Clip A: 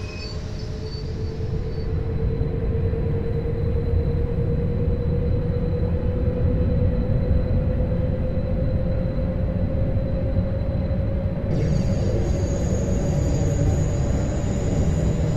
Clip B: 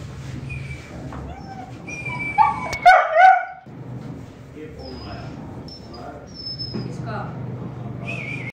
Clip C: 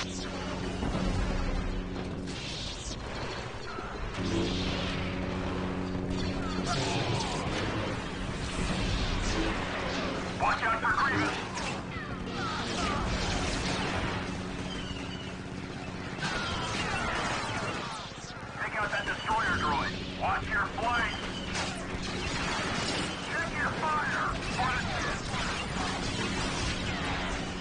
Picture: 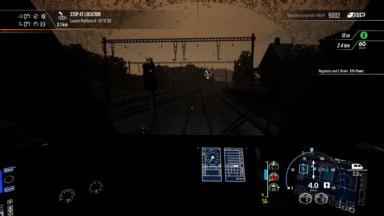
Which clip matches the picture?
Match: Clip A